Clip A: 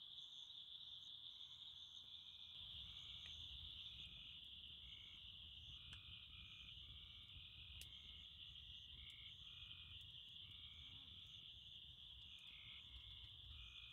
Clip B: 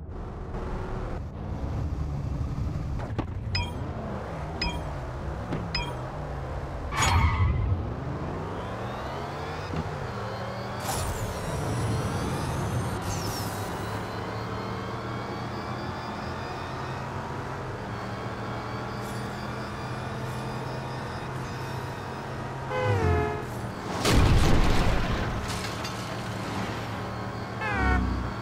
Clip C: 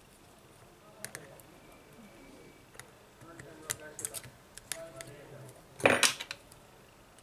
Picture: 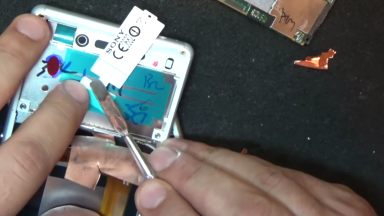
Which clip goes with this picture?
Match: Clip C